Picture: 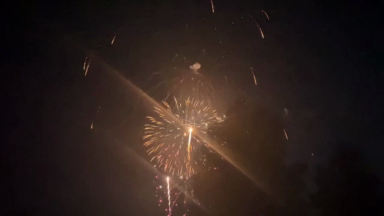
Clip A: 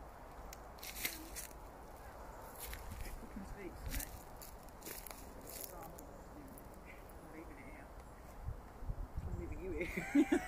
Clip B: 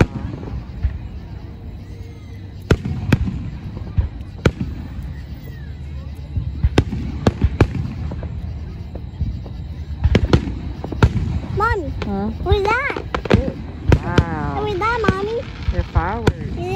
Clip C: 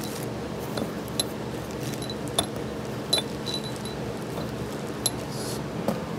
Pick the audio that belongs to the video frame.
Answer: B